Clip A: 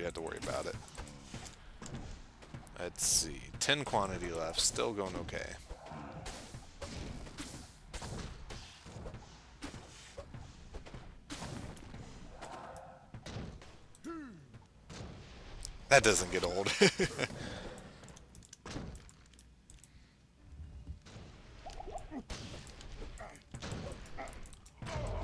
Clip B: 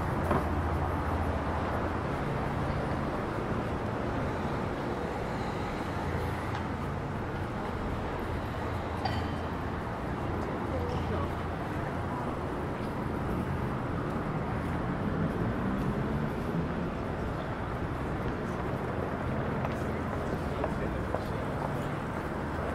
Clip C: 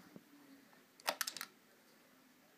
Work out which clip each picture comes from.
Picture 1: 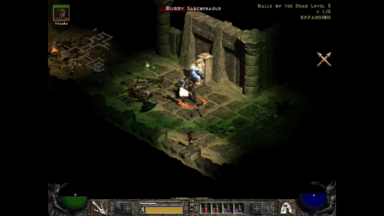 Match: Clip A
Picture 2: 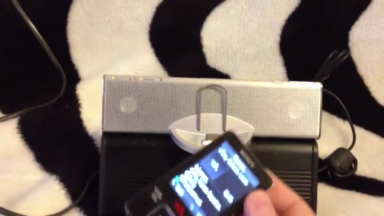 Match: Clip C